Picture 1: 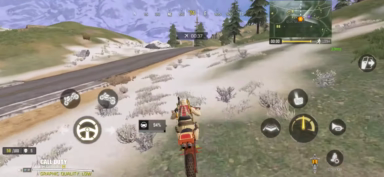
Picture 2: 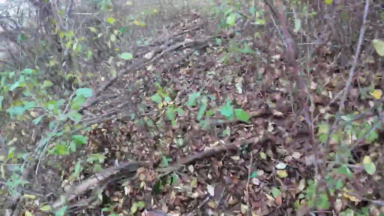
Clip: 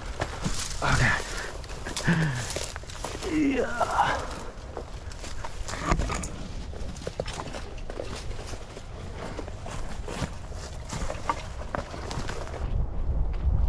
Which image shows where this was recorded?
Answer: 2